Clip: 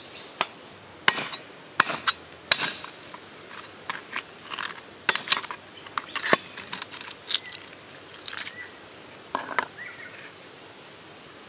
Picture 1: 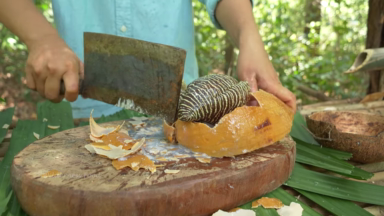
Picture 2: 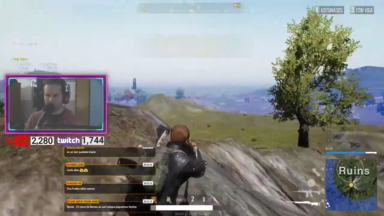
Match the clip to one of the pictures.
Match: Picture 1